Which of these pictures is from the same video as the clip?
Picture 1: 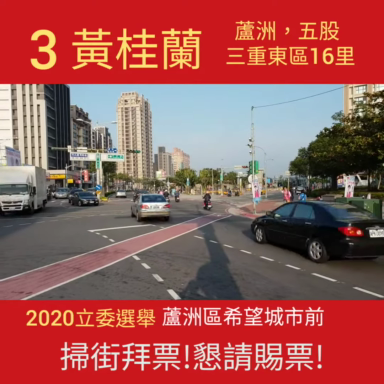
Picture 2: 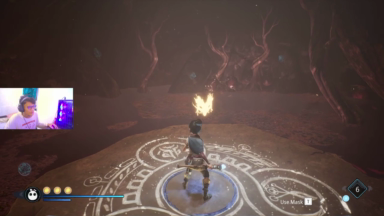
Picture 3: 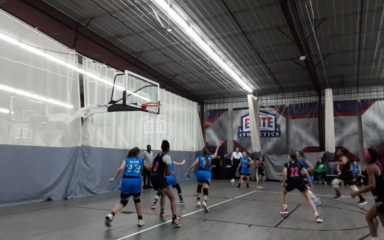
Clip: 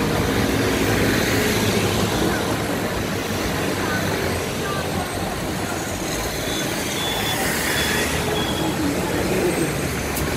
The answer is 1